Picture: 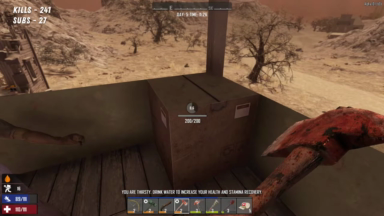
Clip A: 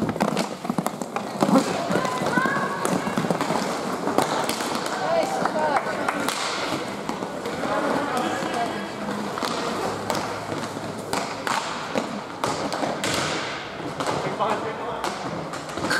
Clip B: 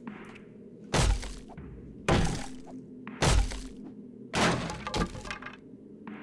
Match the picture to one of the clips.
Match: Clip B